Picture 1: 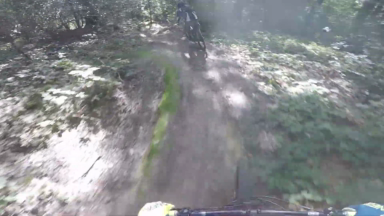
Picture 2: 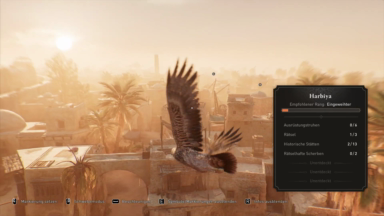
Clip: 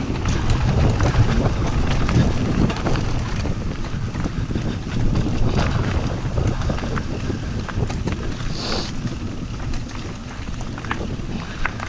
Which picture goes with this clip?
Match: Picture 1